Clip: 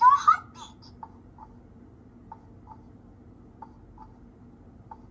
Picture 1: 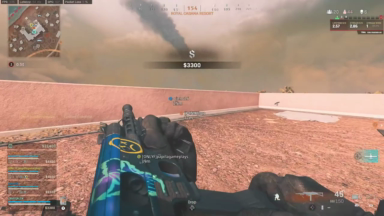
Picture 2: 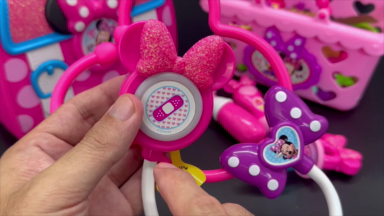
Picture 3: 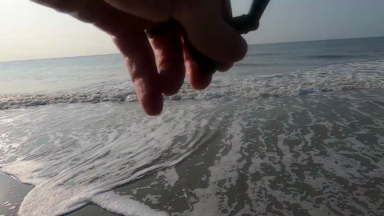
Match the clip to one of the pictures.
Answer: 2